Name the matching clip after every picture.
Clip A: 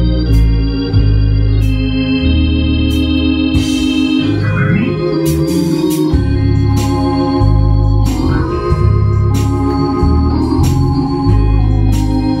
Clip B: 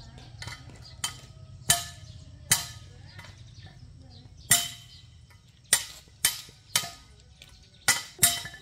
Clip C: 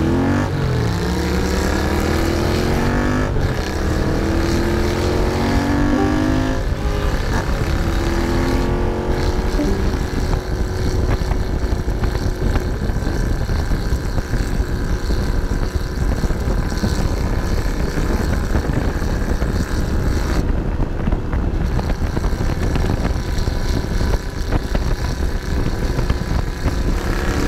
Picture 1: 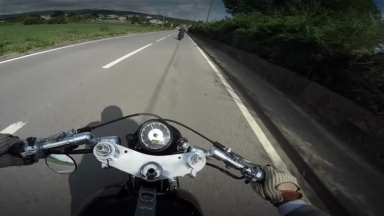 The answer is C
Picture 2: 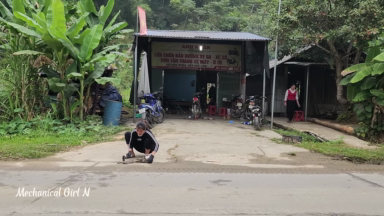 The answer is B